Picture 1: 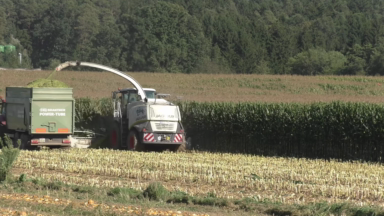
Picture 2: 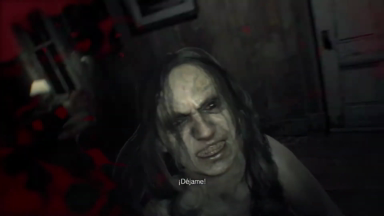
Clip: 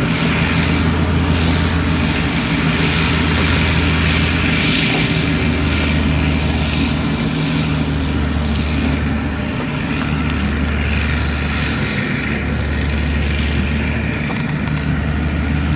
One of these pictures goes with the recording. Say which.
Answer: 1